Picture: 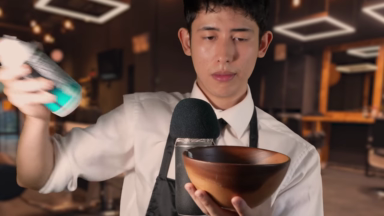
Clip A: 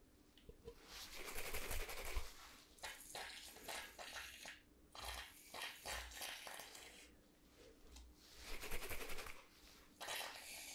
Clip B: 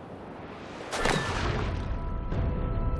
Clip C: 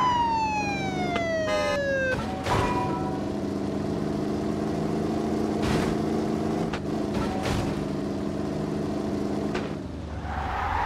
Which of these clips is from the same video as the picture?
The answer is A